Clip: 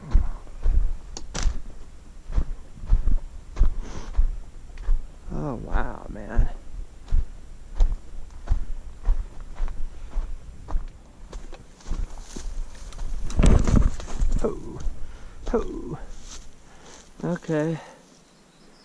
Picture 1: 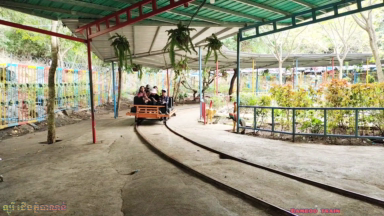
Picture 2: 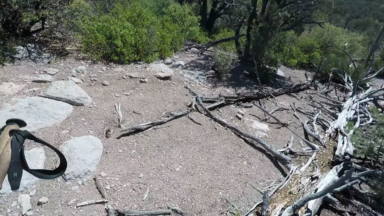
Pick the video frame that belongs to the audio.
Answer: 2